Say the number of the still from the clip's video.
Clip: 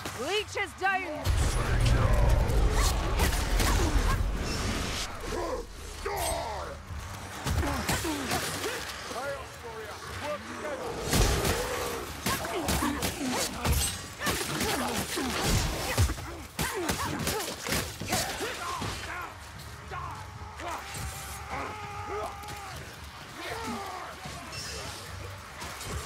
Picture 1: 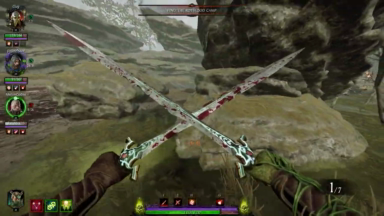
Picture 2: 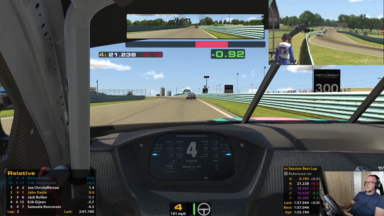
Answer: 1